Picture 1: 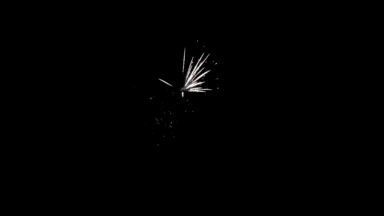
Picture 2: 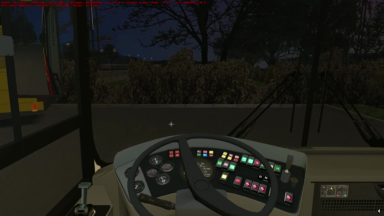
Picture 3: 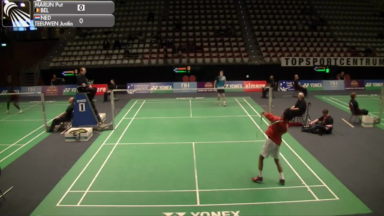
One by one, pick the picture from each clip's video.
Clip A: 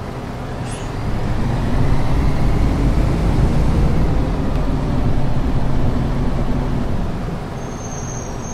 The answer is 2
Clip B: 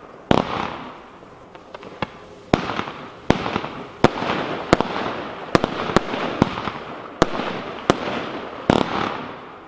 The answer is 1